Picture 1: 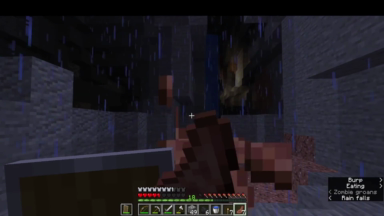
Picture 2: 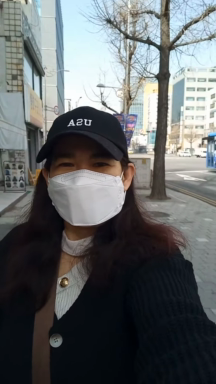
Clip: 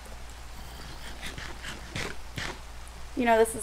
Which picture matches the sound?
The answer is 1